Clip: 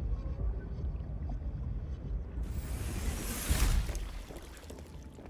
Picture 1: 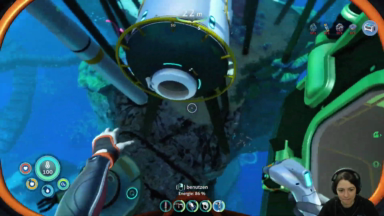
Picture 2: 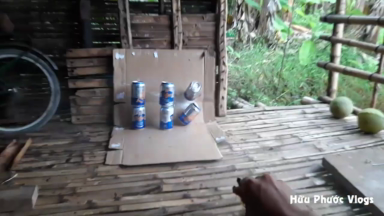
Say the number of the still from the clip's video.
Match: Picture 1